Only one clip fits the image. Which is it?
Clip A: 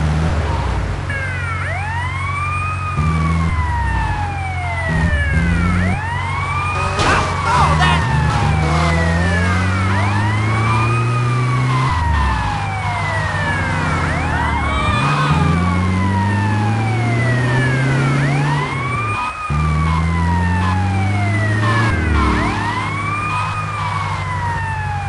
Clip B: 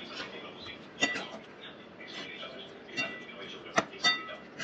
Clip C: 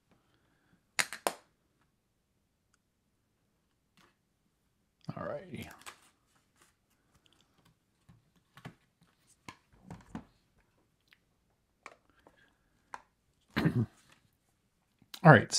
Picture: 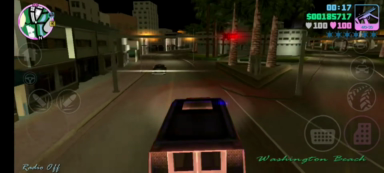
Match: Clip A